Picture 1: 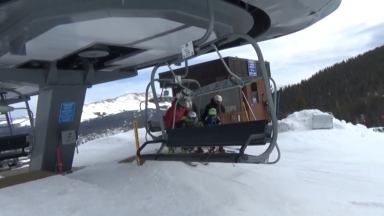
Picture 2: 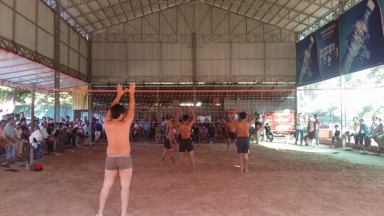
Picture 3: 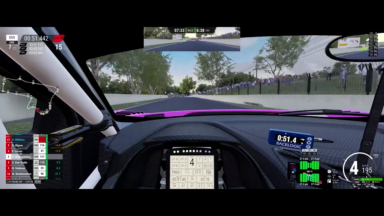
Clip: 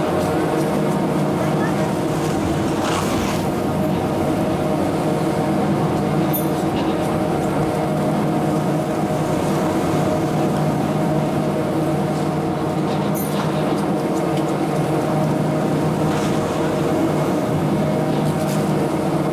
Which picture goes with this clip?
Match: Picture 1